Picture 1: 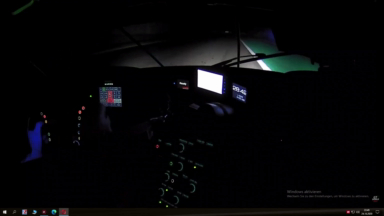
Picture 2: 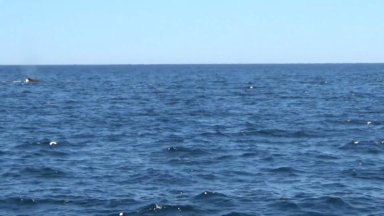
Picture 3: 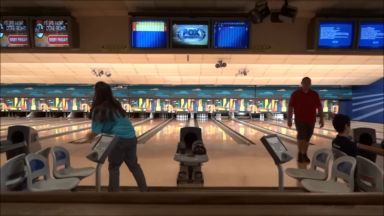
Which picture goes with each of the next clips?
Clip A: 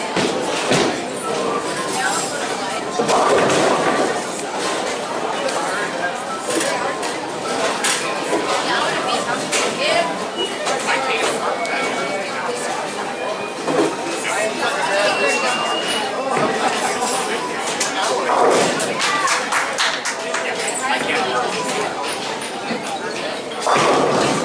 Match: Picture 3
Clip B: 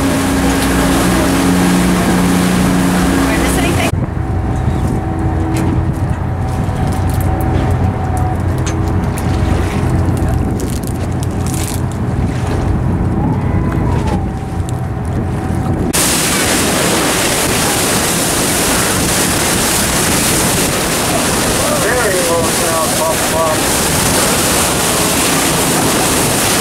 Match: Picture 2